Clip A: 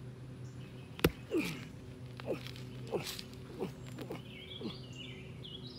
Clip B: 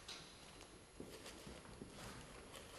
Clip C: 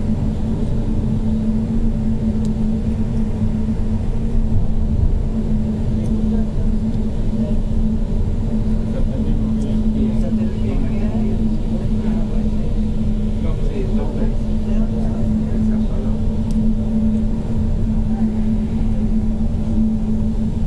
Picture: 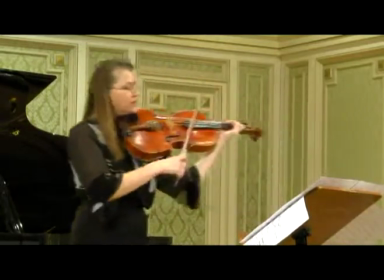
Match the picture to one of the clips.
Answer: B